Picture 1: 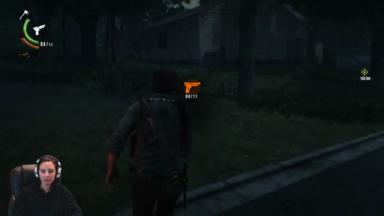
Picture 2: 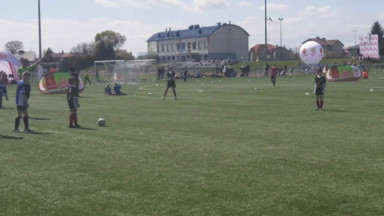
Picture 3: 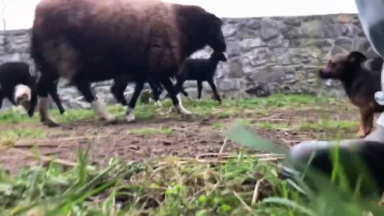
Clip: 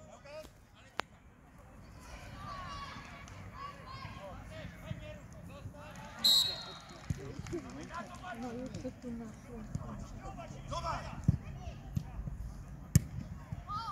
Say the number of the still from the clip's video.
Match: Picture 2